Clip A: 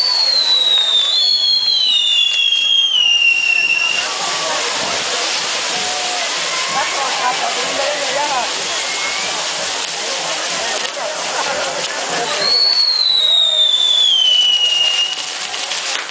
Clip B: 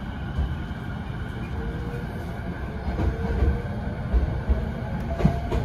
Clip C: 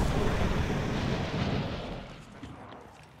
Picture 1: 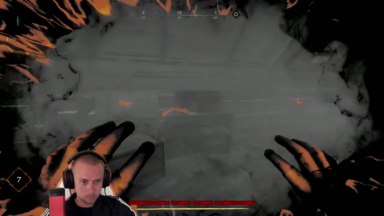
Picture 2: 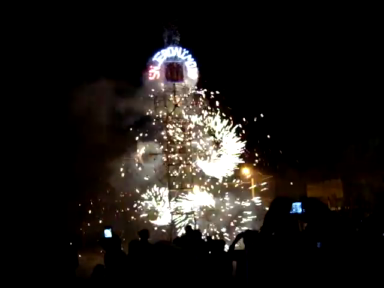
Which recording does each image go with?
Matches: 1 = C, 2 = A